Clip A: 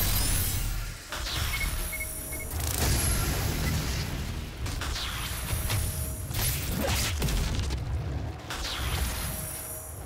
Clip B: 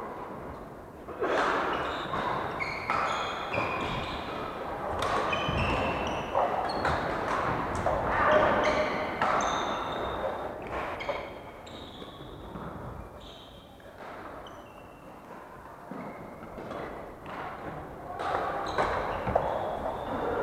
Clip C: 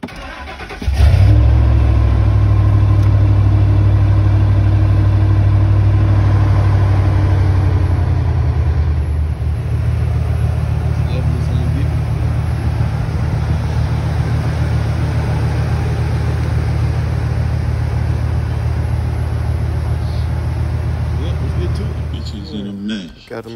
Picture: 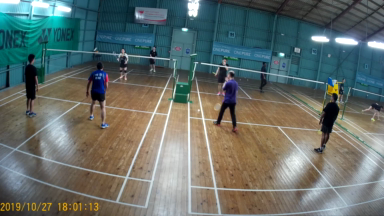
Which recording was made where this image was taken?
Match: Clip B